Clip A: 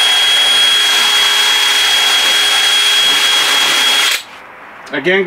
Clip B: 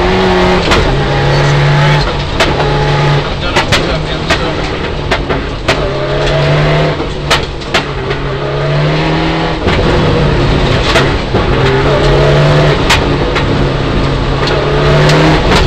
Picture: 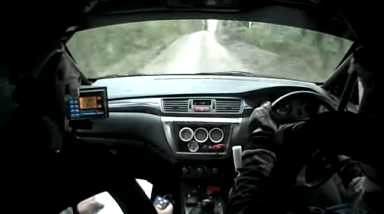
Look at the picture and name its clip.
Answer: B